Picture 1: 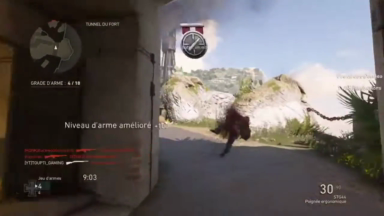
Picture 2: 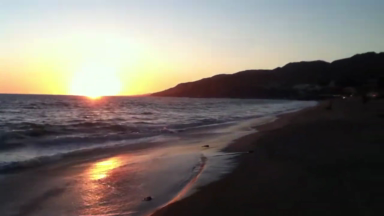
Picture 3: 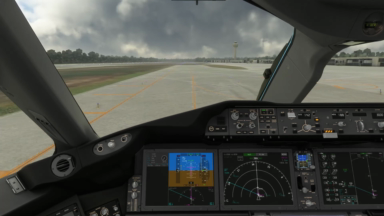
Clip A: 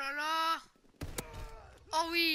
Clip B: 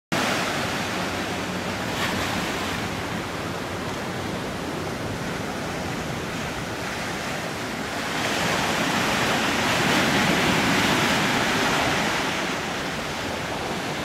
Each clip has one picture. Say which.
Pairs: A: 1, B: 2